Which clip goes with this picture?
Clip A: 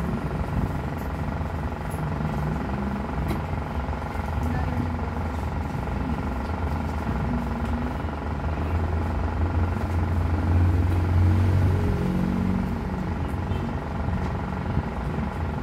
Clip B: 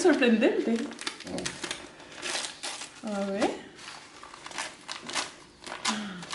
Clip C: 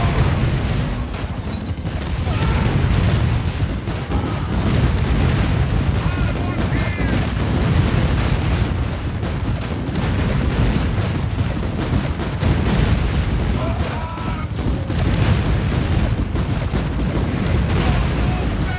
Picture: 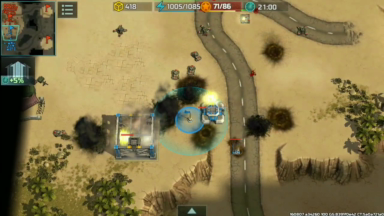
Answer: C